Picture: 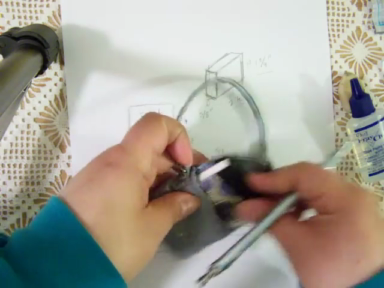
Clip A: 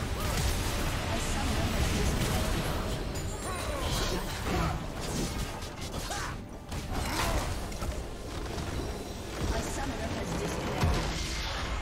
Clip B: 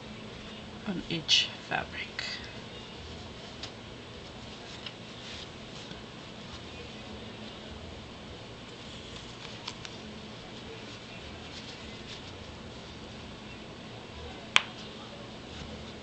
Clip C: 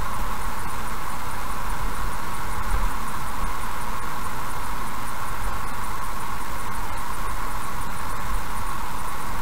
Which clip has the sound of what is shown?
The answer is B